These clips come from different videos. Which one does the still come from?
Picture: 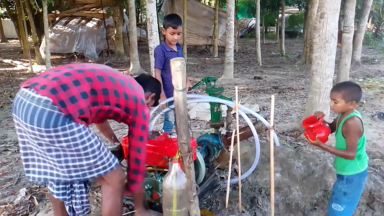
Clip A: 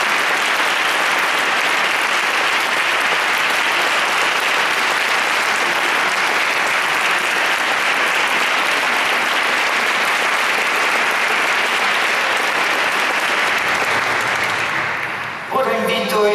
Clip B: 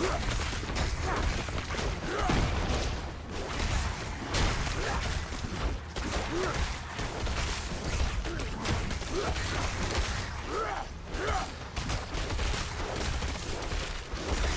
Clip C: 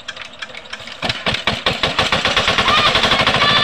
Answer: C